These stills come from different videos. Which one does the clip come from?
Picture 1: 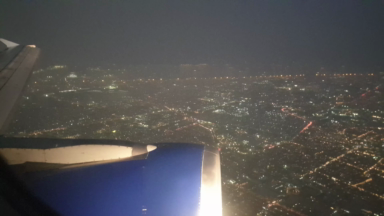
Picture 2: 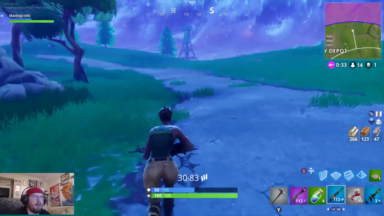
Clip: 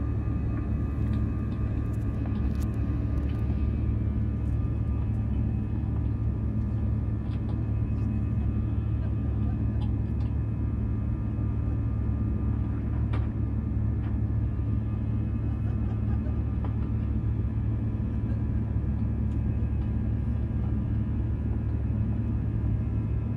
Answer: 1